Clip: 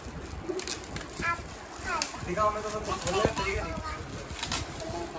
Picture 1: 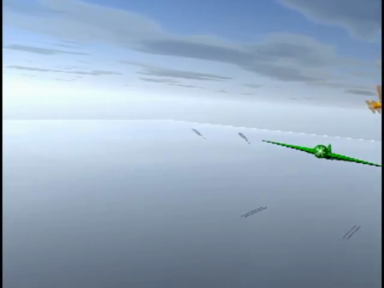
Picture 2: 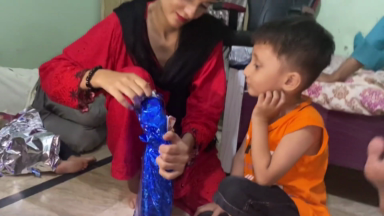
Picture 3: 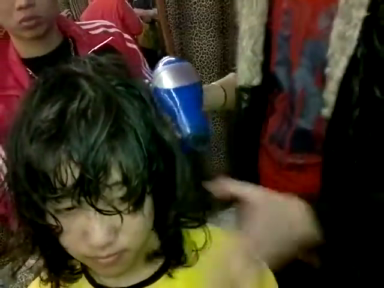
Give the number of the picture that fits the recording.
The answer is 2